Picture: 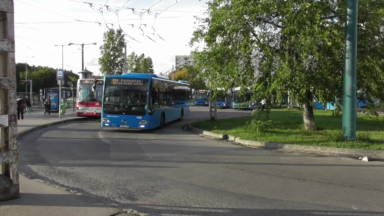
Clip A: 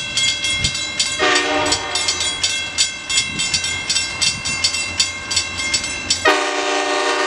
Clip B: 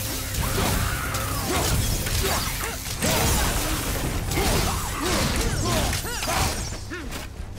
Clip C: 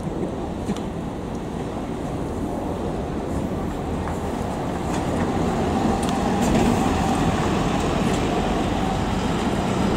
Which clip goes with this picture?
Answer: C